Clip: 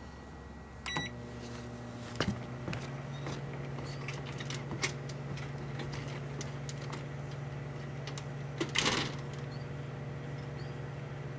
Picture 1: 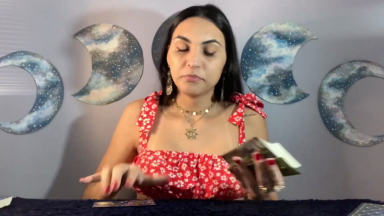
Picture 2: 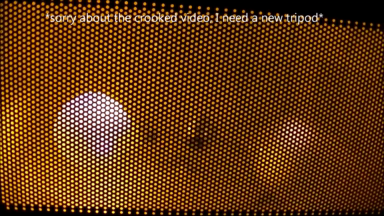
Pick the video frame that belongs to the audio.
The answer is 2